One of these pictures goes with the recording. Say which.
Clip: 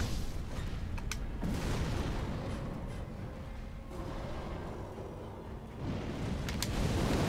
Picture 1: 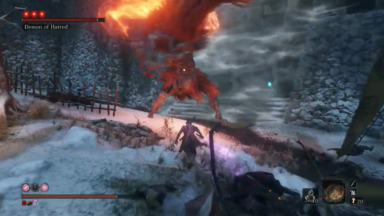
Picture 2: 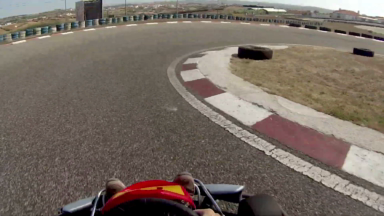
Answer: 1